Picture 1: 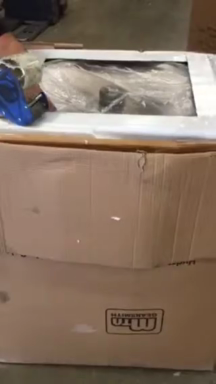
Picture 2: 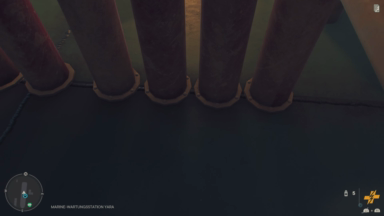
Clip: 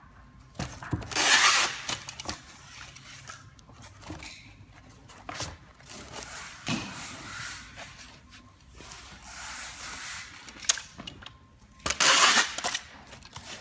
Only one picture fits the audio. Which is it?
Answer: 1